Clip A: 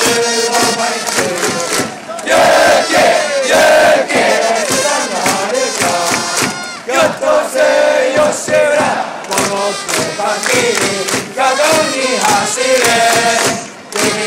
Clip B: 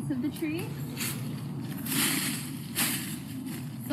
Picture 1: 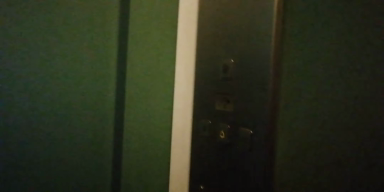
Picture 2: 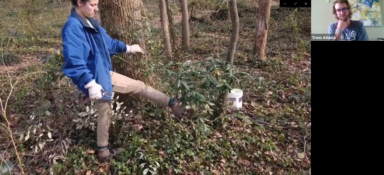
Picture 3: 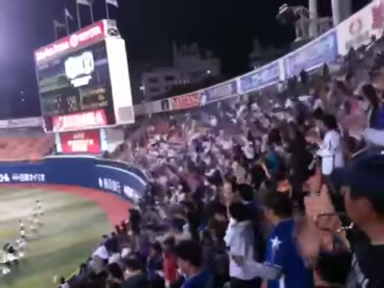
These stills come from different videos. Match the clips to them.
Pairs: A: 3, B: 2